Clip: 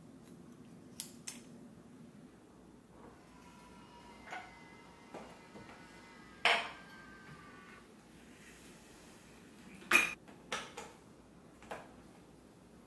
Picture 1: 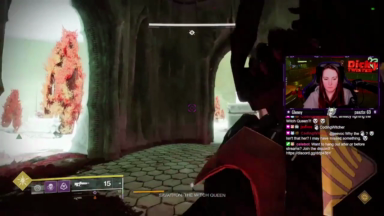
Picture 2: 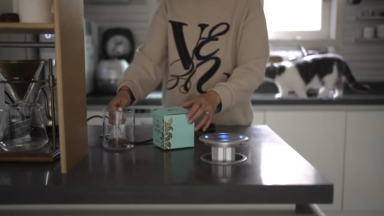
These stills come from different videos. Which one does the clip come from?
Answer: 2